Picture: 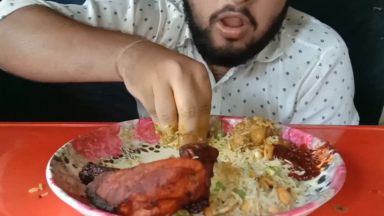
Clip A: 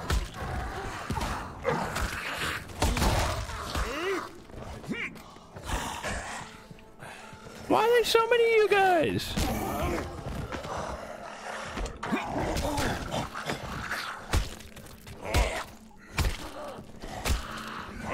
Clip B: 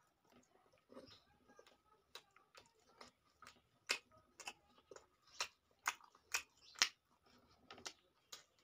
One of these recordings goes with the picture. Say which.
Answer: B